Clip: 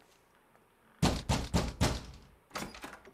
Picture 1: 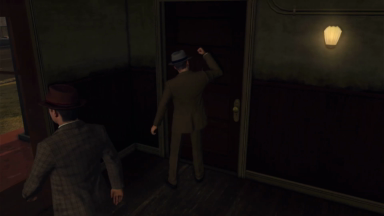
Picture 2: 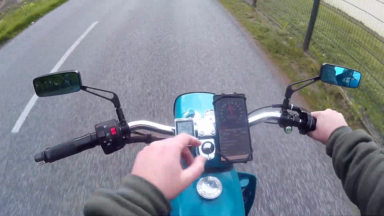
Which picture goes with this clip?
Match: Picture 1